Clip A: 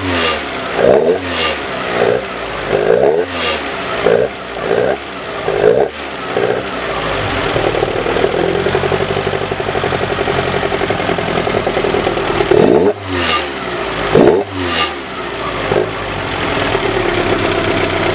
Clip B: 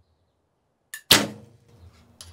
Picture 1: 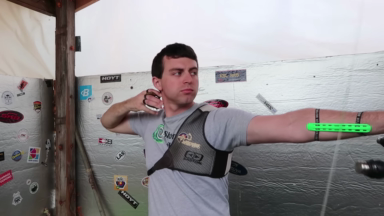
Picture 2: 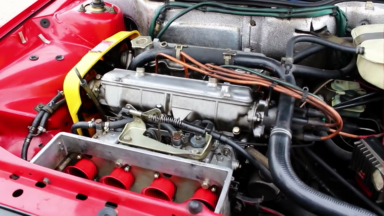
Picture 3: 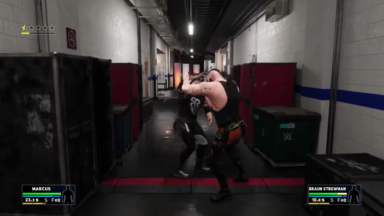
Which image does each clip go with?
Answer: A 2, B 1